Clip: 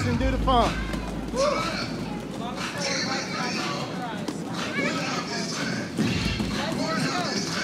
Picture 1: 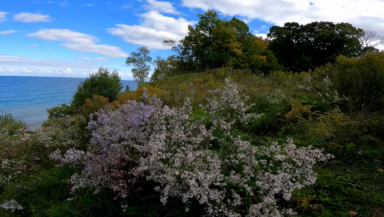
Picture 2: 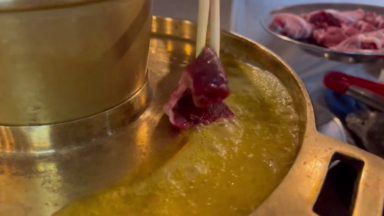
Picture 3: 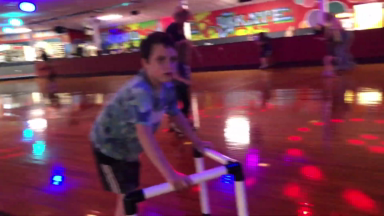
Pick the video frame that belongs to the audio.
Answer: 3